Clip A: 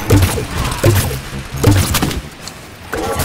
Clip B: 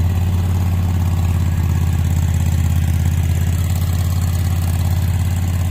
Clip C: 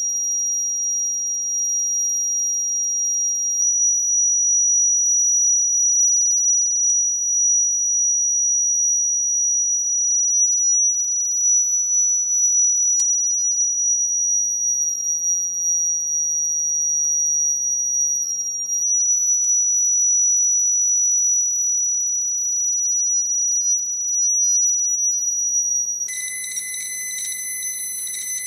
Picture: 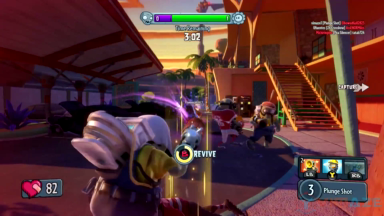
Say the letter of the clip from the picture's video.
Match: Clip A